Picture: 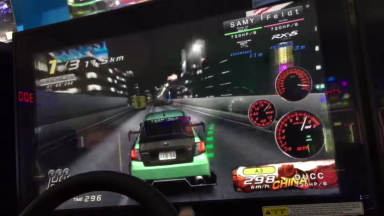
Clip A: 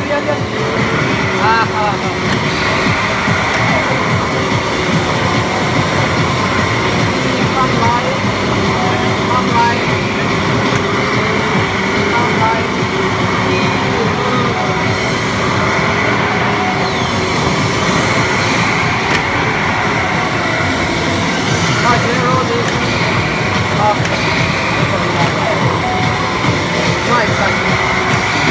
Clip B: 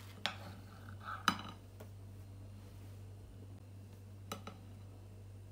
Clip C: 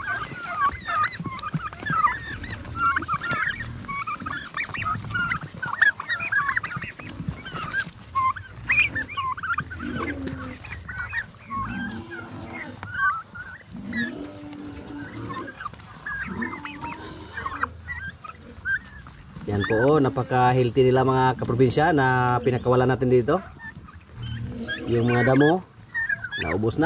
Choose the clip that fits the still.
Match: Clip A